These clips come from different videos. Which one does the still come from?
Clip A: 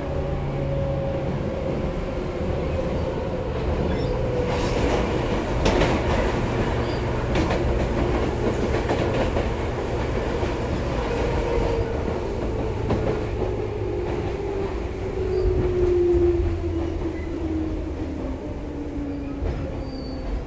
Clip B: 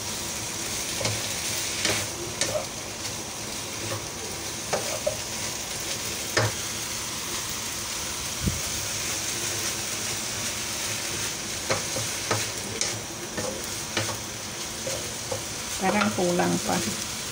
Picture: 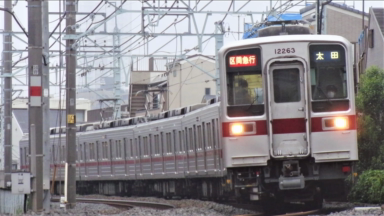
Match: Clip A